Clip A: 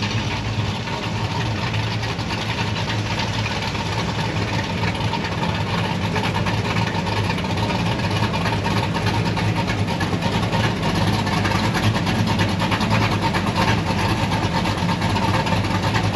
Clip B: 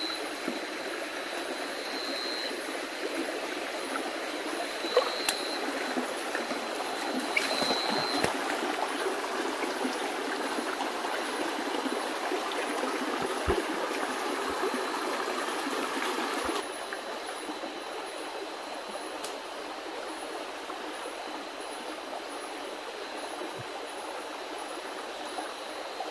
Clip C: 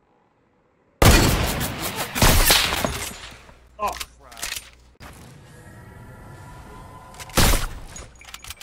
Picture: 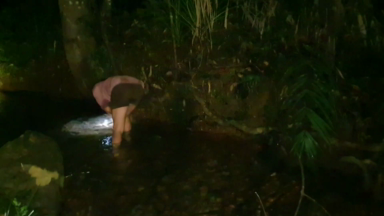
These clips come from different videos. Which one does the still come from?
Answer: B